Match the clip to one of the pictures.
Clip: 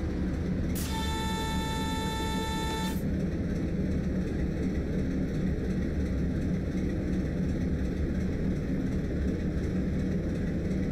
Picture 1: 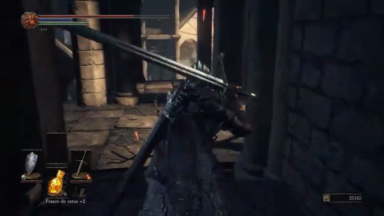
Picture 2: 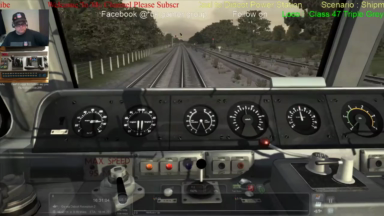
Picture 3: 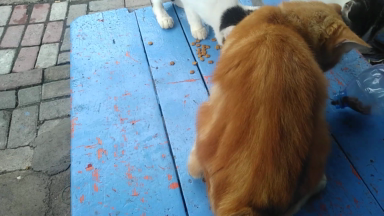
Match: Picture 2